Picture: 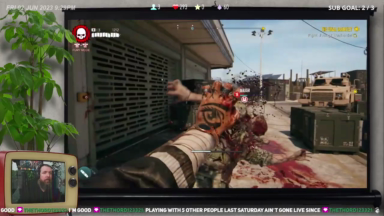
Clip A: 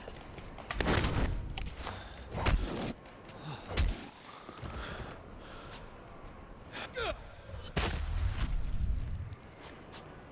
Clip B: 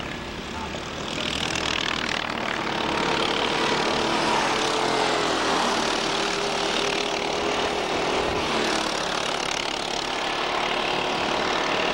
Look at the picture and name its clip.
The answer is A